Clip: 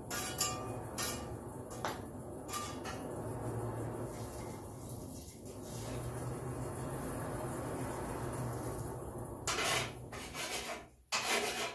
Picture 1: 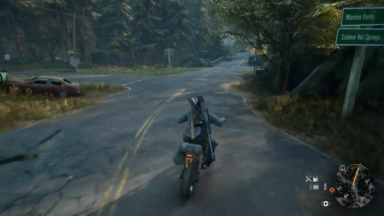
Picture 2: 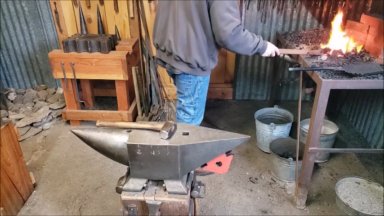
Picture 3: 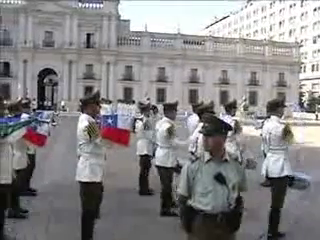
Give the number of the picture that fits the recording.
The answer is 2